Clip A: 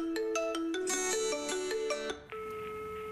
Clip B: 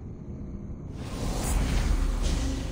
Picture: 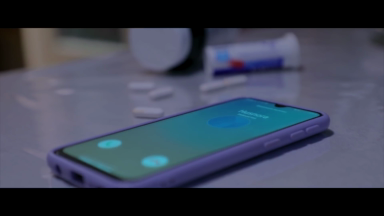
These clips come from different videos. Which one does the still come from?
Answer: A